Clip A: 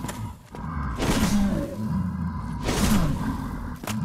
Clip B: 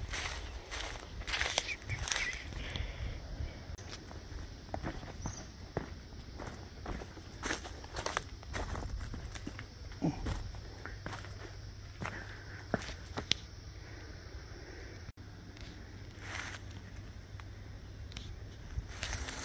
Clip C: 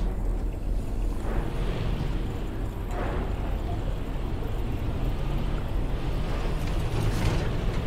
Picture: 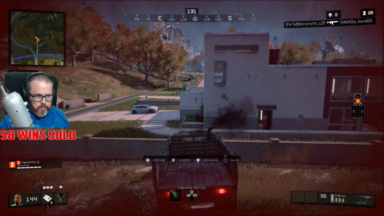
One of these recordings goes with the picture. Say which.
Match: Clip C